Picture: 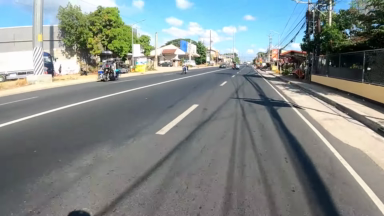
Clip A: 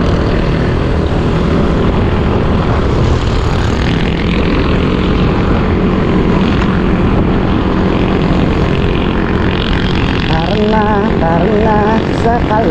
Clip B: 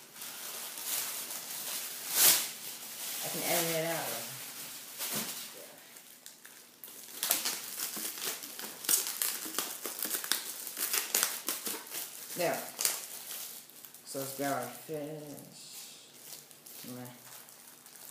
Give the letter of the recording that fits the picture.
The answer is A